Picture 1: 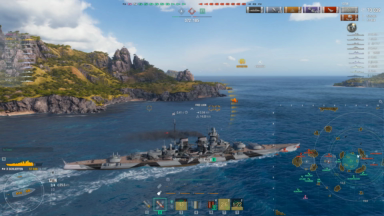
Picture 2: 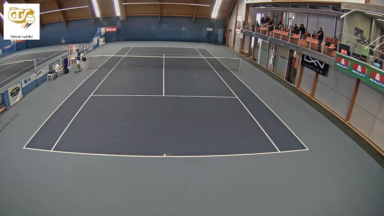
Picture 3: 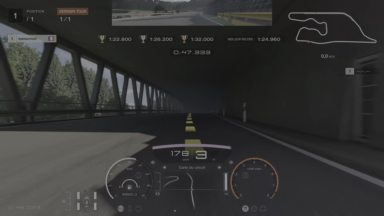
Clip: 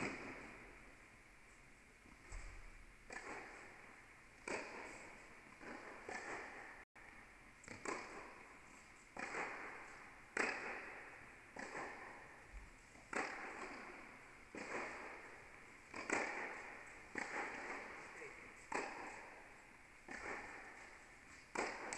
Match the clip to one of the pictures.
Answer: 2